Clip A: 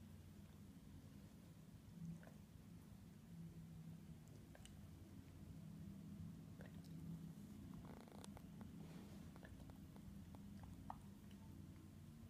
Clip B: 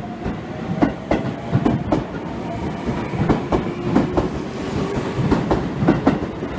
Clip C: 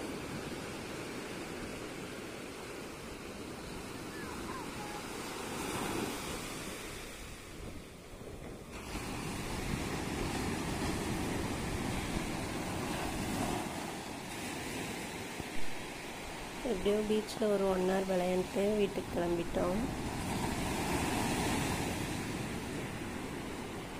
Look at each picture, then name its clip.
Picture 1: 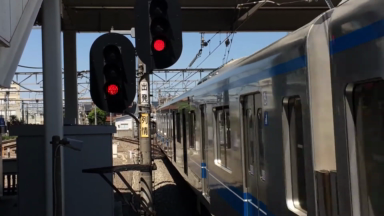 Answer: B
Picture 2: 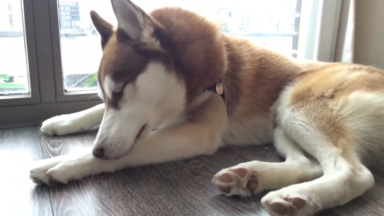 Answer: A